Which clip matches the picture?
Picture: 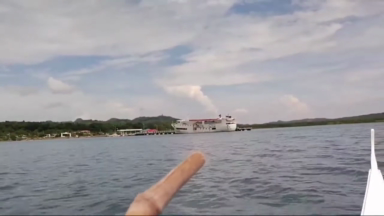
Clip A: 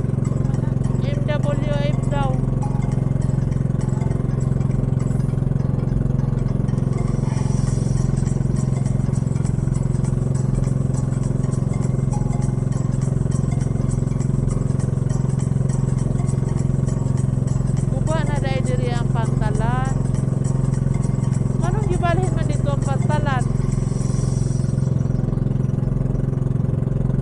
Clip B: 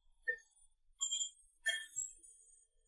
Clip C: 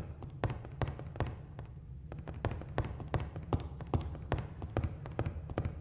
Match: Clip A